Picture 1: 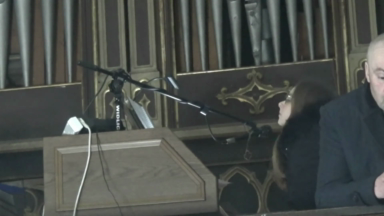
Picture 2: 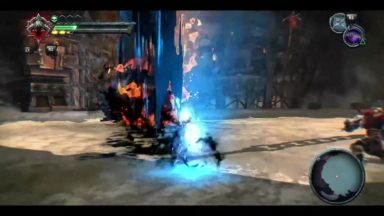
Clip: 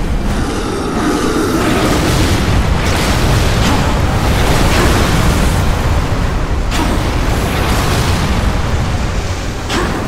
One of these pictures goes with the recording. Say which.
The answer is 2